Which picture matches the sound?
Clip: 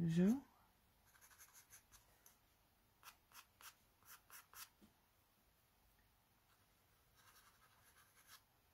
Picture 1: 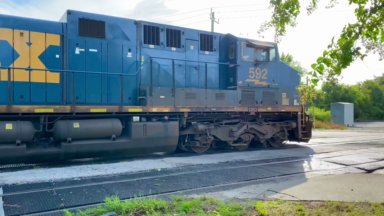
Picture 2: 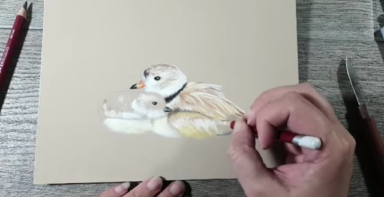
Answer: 2